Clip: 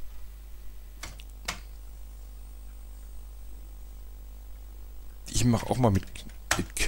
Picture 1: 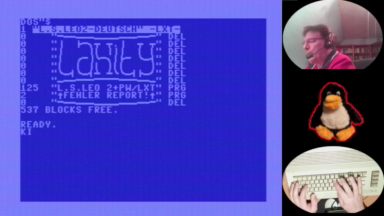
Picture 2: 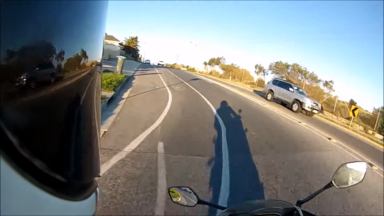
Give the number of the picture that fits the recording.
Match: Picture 1